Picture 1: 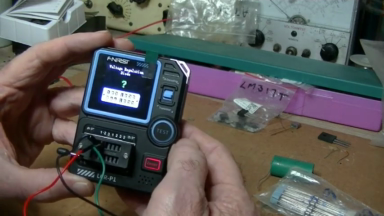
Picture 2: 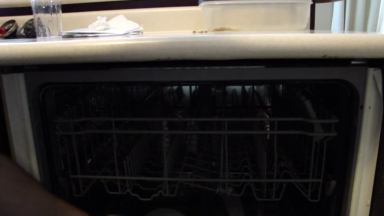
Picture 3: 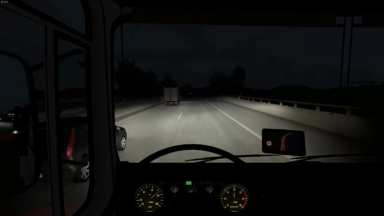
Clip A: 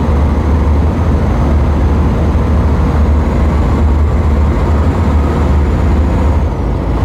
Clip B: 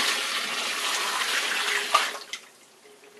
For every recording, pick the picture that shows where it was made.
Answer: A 3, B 2